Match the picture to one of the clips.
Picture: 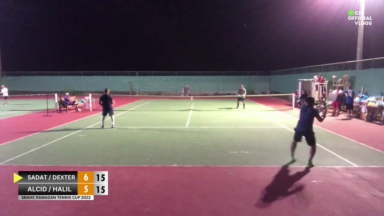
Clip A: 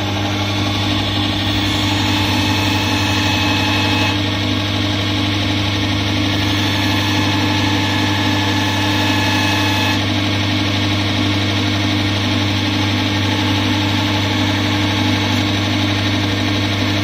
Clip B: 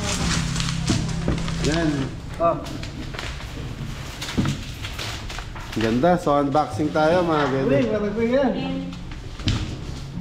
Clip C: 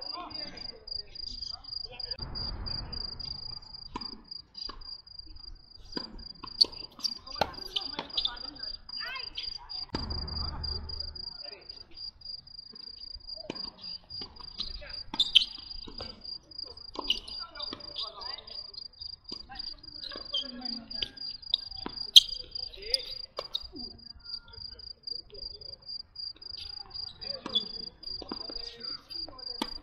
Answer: C